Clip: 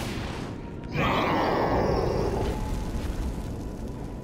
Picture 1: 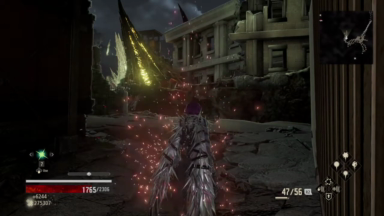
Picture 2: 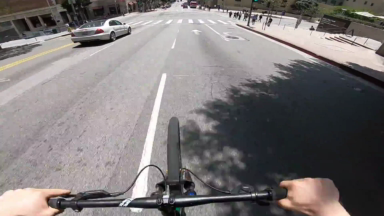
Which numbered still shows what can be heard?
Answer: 1